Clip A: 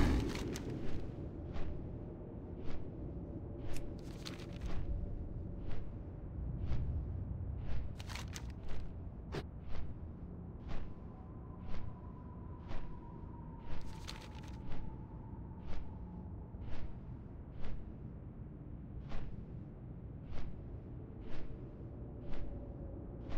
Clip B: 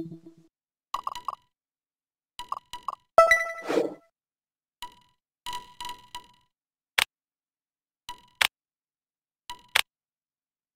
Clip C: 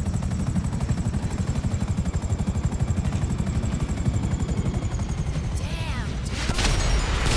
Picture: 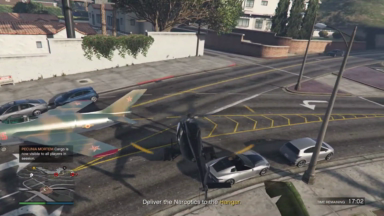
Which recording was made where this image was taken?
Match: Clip C